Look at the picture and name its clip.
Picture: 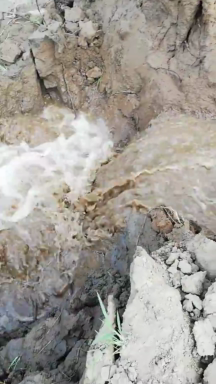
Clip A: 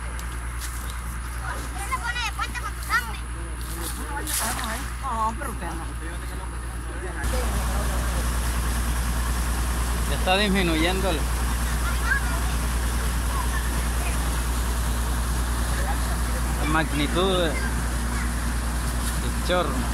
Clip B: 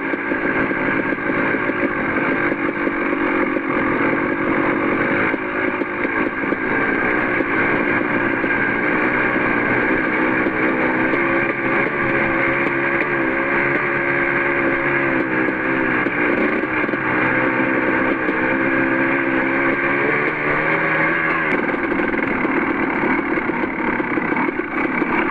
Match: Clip A